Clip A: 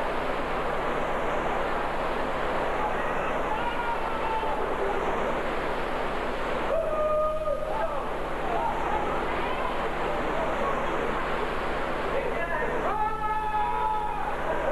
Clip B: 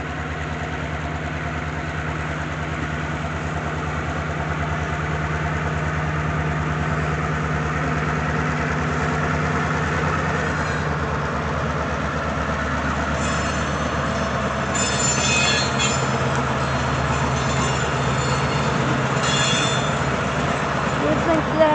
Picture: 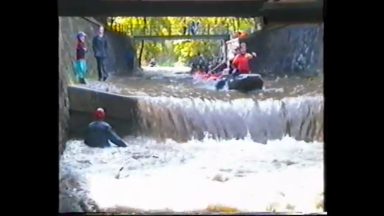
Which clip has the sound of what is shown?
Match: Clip A